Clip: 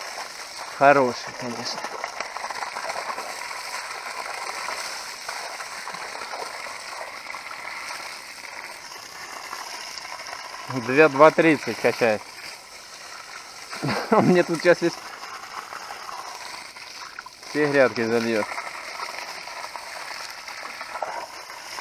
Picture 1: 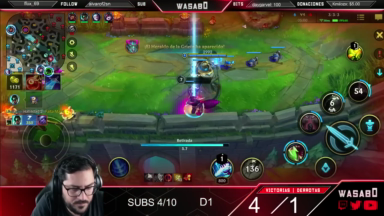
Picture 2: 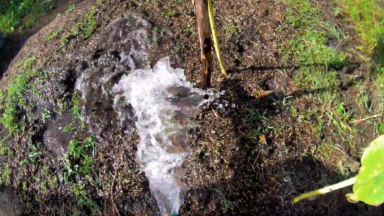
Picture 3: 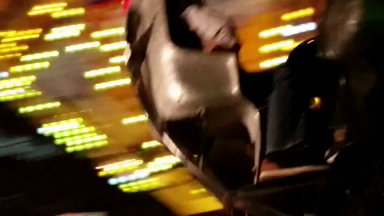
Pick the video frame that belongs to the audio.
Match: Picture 2